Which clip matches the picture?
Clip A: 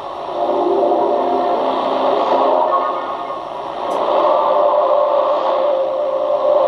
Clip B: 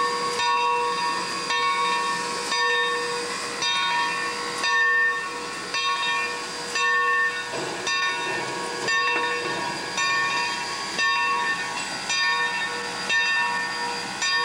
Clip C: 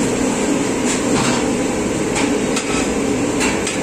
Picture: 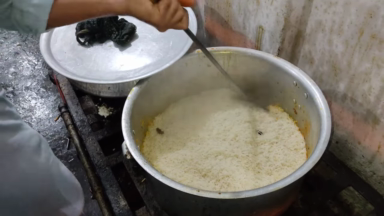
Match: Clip C